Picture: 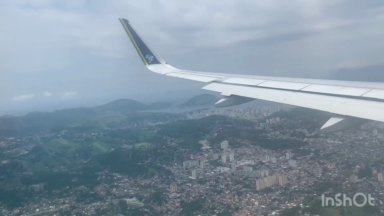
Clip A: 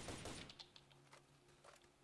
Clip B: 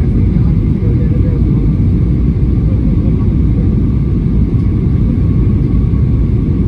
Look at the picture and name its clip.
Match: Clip B